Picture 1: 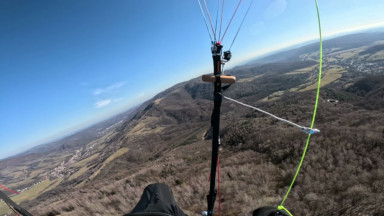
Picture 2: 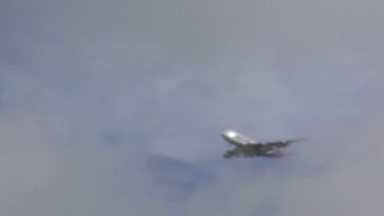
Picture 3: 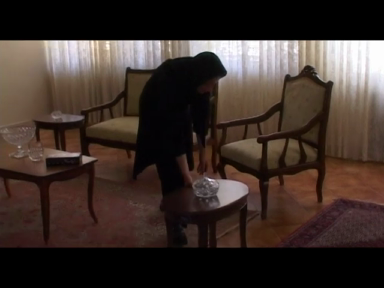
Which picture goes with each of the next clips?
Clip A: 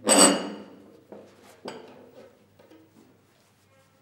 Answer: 3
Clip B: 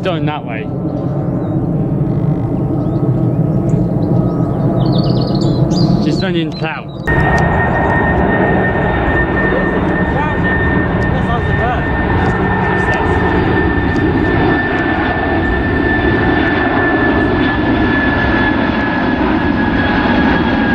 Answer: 2